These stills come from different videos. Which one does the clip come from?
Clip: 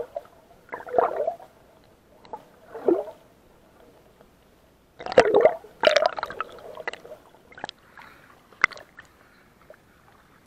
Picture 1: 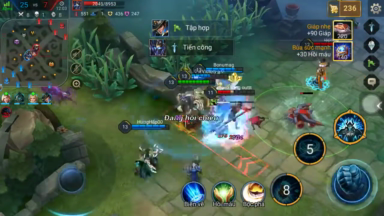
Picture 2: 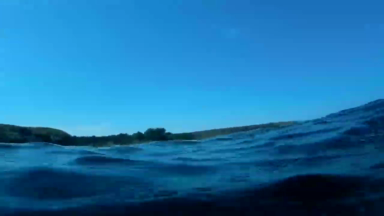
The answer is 2